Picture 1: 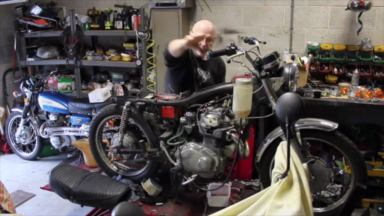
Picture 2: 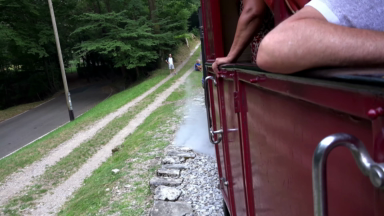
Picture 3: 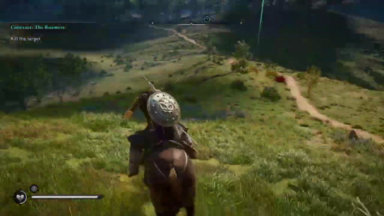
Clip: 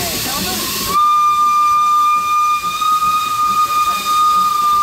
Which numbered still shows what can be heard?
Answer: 2